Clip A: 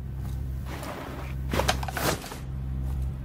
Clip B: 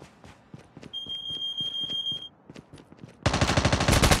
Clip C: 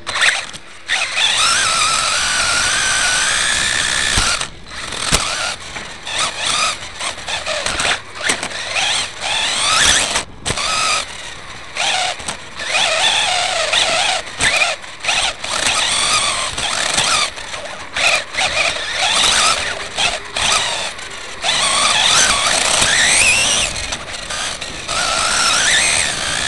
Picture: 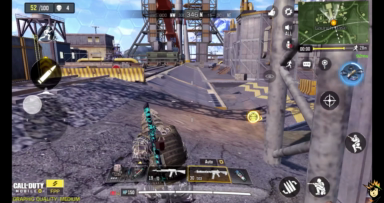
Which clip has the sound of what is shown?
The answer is B